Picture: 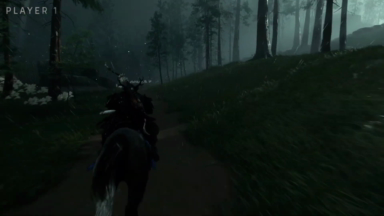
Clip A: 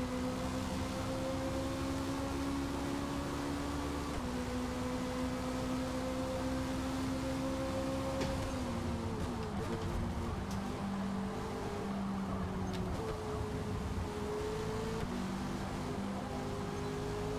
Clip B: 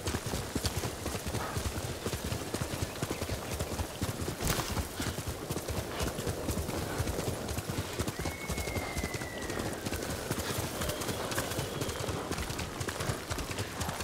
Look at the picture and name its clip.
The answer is B